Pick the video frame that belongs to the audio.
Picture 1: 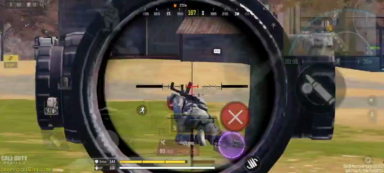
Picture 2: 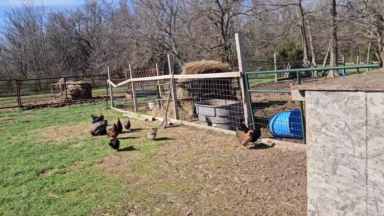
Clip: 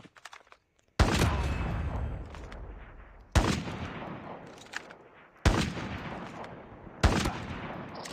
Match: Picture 1